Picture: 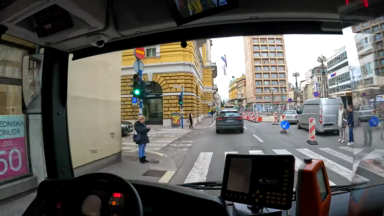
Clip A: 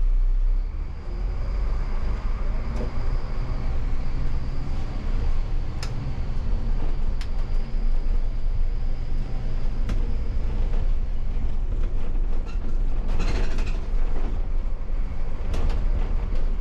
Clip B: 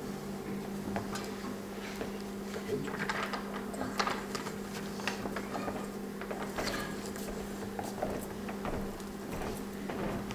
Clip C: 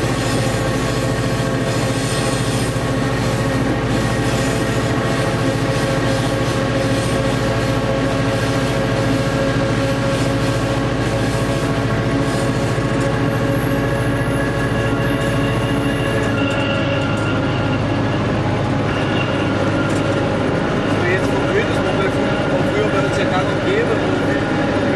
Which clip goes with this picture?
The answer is A